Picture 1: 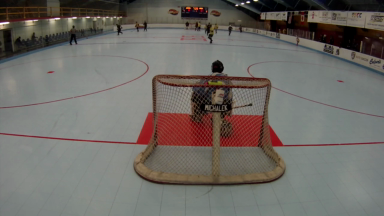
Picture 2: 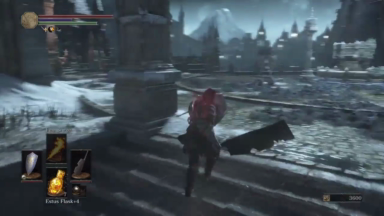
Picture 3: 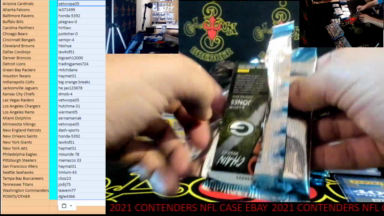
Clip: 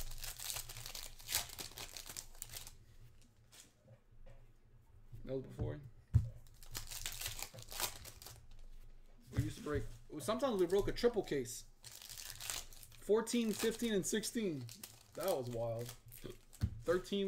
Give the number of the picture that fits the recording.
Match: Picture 3